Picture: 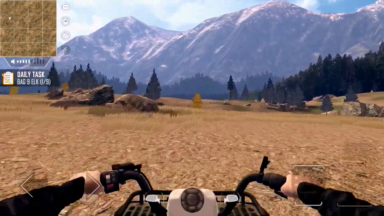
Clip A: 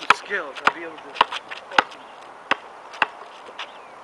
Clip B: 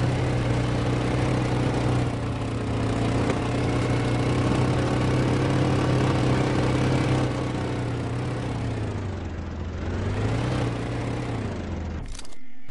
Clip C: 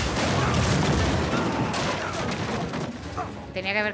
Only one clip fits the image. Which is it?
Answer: B